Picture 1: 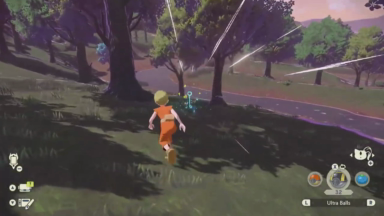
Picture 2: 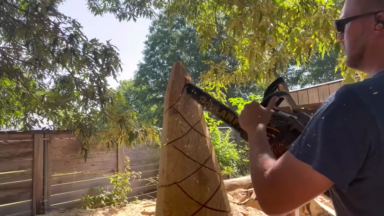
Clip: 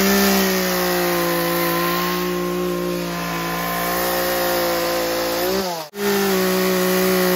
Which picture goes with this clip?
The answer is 2